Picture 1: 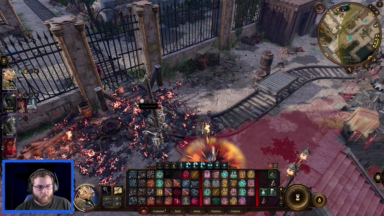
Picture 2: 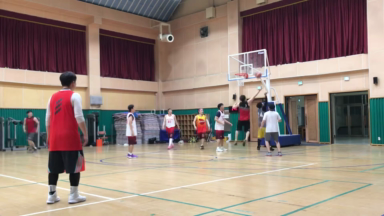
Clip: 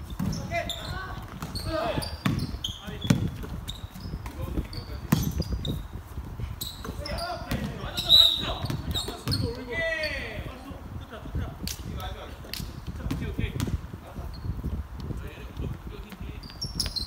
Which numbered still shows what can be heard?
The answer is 2